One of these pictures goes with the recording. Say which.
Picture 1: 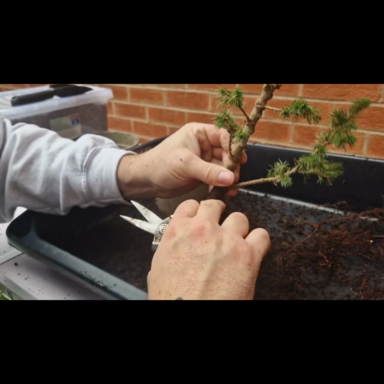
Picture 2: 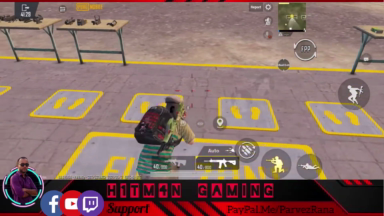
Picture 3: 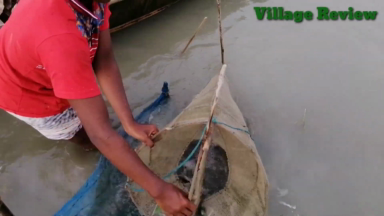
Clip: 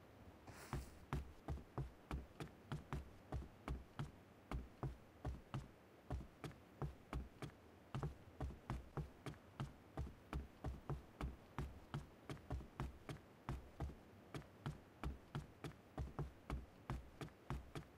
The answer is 2